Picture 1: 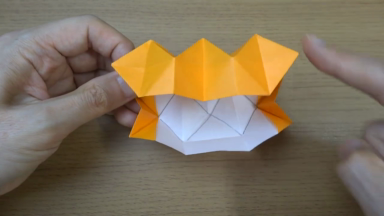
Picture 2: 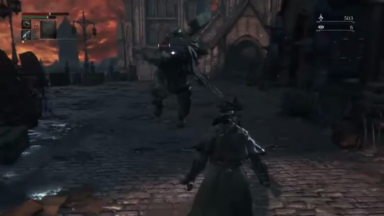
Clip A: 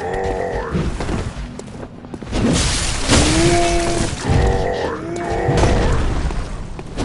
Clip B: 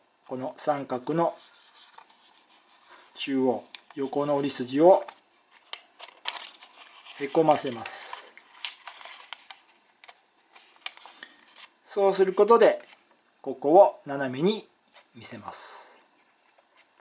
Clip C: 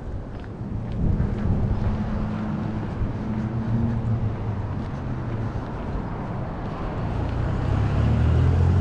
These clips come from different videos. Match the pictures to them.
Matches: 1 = B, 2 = A